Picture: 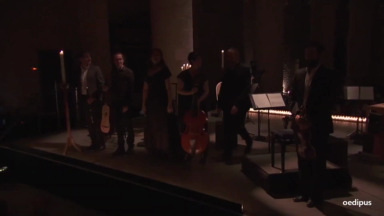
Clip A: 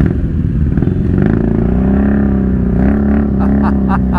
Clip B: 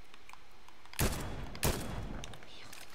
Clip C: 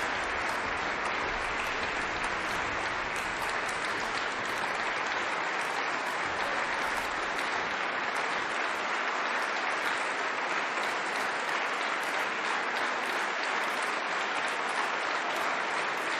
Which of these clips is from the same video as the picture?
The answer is C